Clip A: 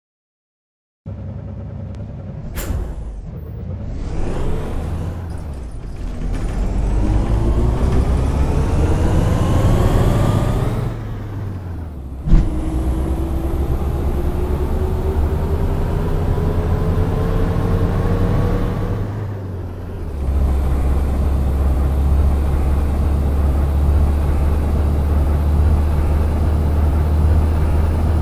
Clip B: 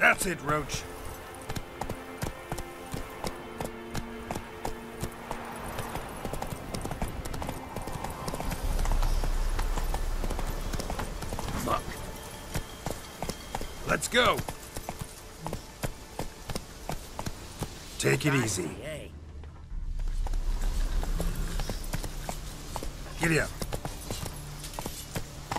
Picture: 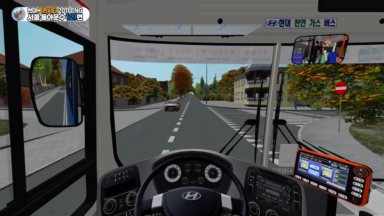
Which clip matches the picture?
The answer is A